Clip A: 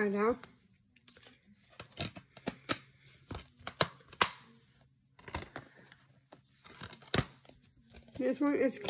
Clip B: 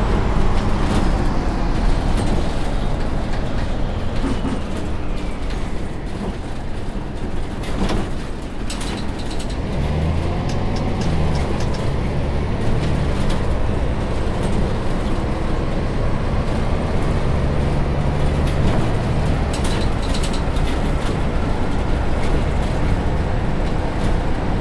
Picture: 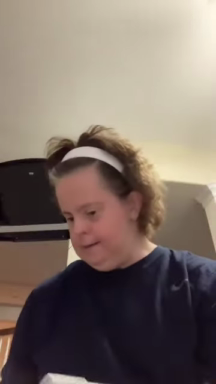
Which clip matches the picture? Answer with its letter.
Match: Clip A